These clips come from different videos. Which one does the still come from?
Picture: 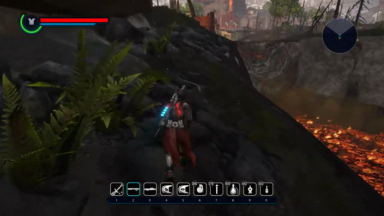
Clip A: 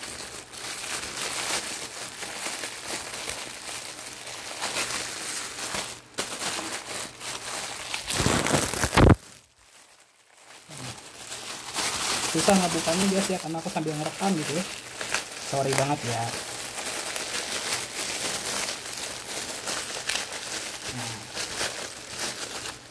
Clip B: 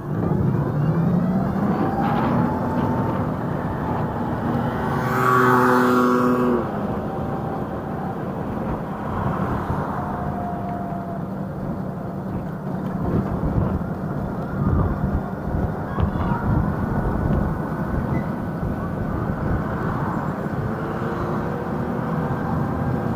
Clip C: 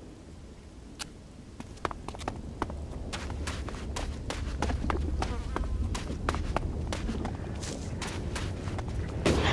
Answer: C